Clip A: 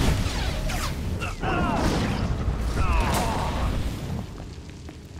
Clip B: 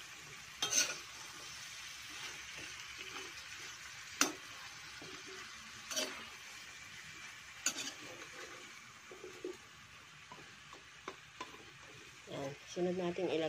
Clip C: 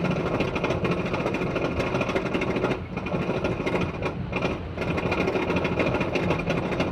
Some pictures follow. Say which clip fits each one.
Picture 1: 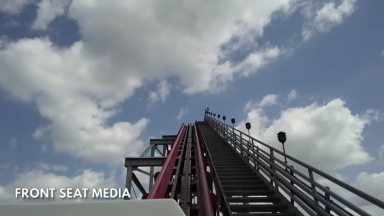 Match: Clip C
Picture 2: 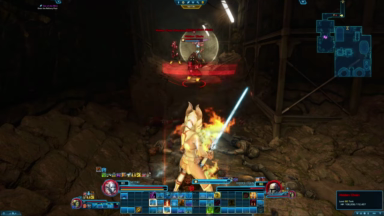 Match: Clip A